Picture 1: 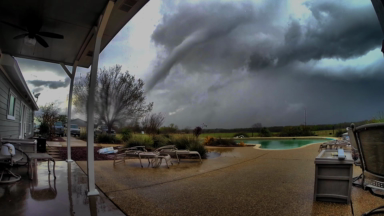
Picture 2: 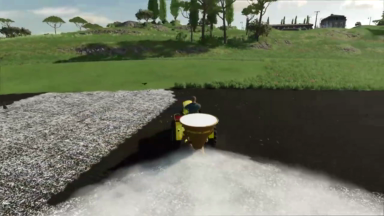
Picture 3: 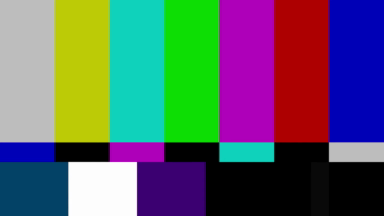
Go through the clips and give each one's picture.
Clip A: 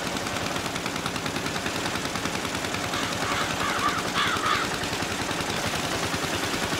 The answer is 2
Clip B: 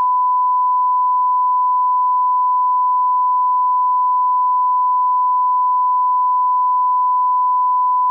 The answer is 3